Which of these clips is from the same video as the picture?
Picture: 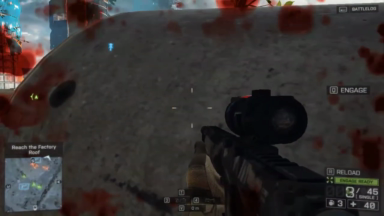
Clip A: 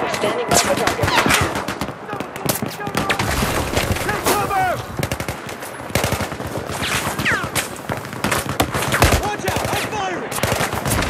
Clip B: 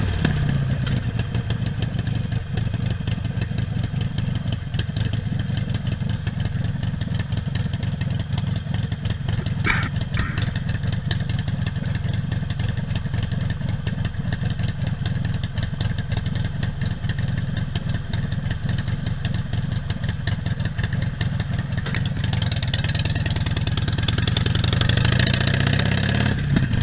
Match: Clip A